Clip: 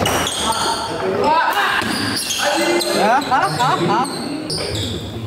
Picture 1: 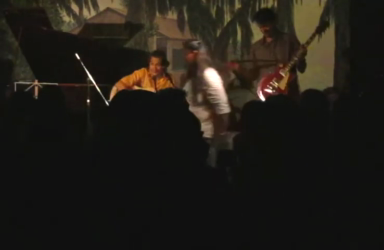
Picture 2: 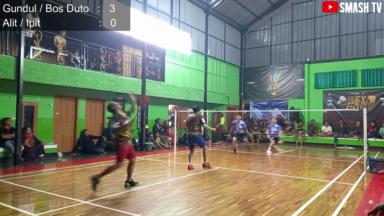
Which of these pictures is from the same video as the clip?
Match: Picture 2